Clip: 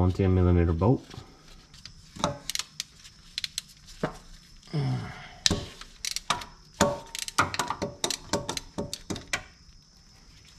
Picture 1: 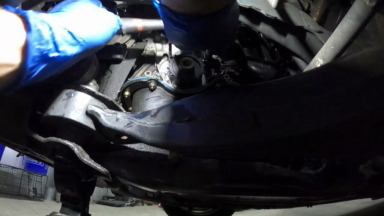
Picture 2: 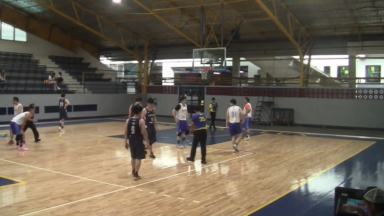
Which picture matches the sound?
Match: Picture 1